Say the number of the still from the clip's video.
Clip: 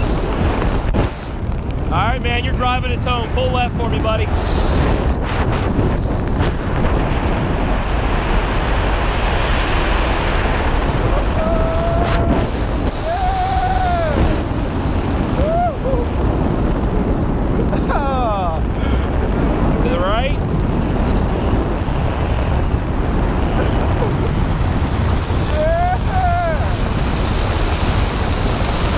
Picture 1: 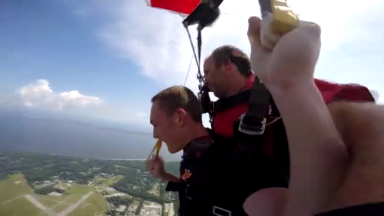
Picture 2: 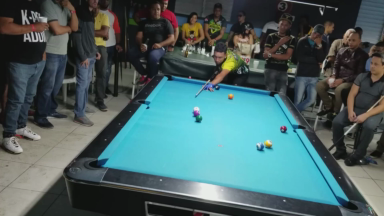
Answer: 1